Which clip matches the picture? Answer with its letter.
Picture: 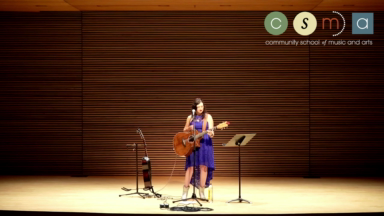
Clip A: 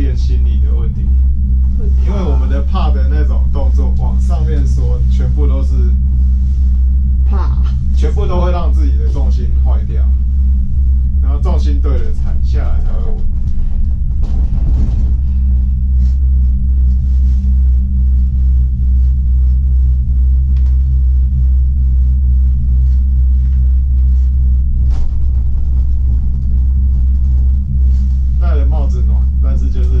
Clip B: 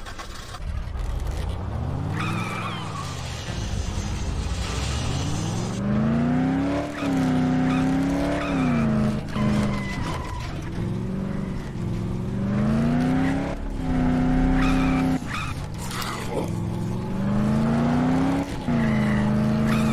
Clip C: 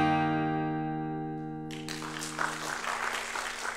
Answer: C